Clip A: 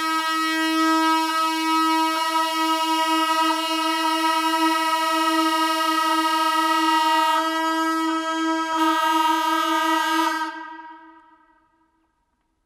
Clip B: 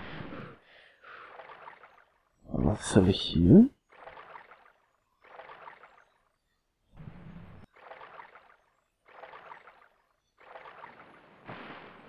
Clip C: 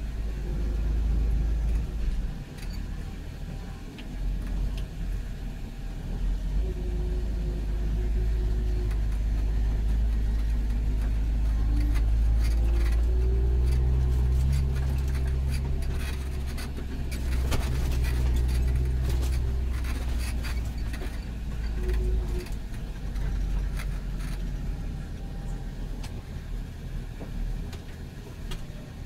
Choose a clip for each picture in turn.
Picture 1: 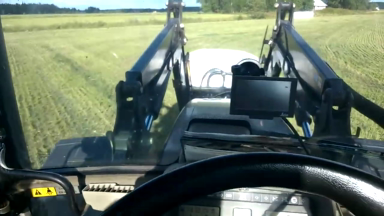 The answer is C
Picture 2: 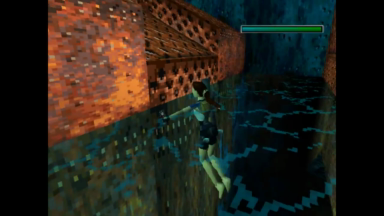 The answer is B